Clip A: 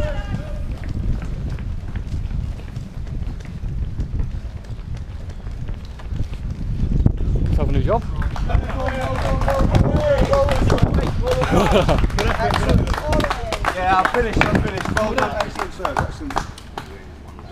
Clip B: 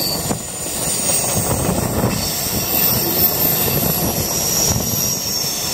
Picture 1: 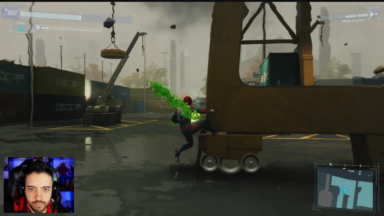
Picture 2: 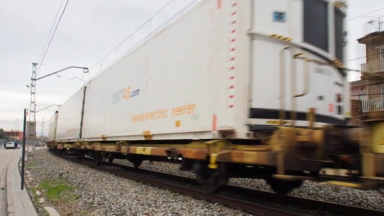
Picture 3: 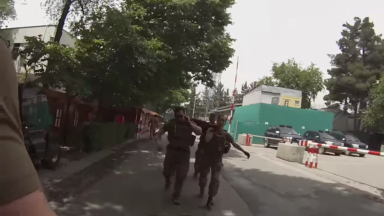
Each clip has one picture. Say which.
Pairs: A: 3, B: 2